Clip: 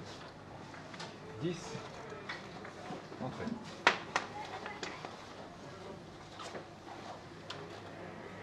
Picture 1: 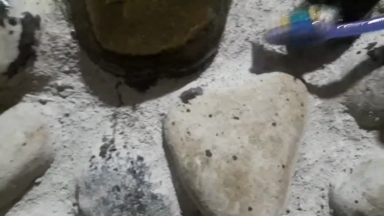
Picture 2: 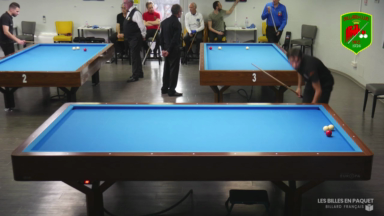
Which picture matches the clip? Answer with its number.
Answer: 2